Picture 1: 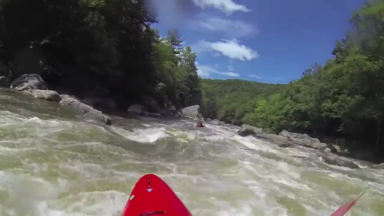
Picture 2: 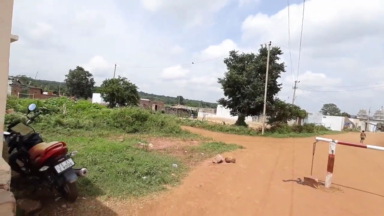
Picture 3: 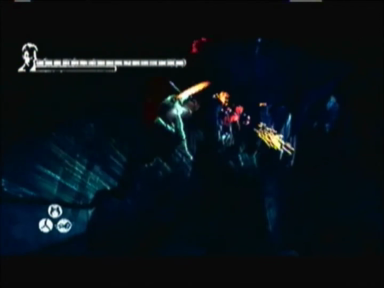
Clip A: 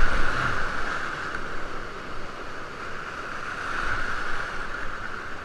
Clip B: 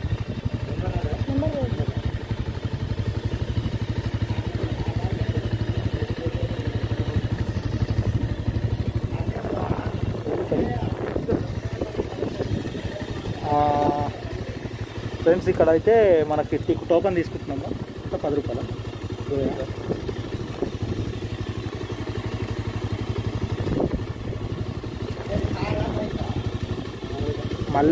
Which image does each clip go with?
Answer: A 1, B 2